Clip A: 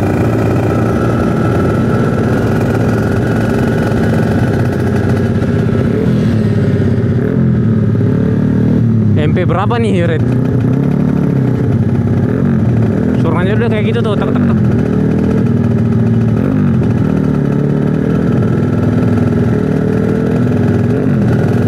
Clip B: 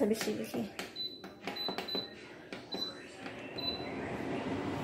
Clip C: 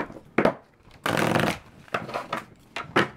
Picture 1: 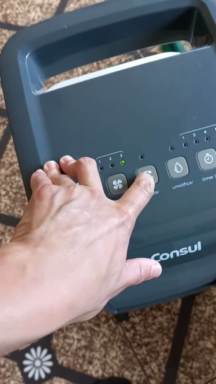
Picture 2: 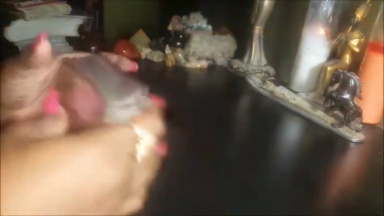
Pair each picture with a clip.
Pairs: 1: B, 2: C